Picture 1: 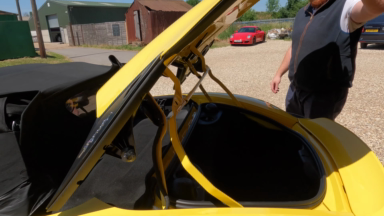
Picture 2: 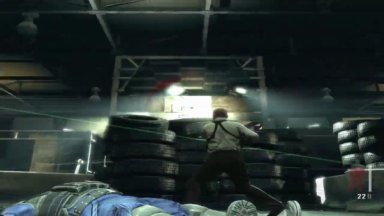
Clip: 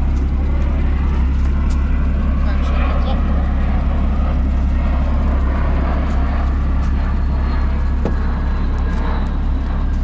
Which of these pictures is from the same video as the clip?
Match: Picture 1